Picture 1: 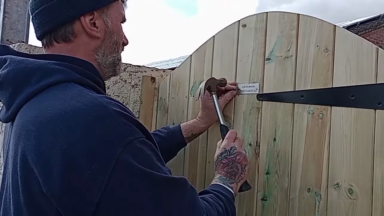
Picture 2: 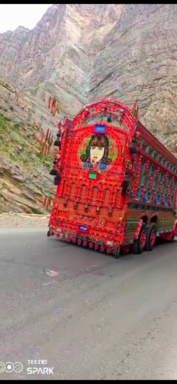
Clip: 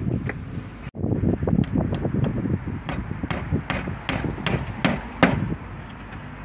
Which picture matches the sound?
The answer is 1